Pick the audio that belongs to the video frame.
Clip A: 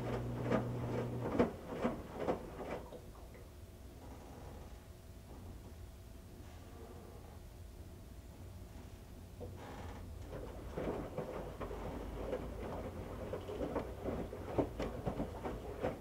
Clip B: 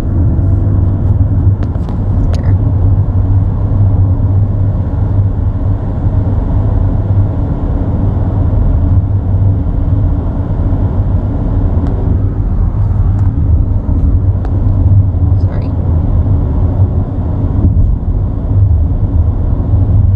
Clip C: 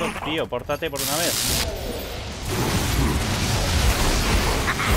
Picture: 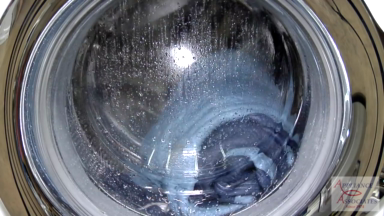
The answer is A